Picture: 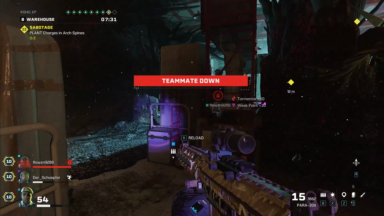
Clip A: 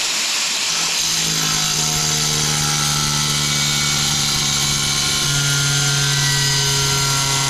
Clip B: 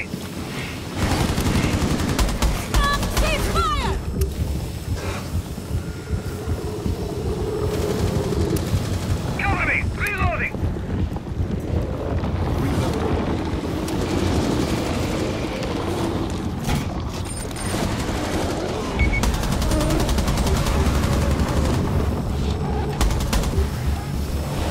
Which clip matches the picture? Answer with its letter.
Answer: B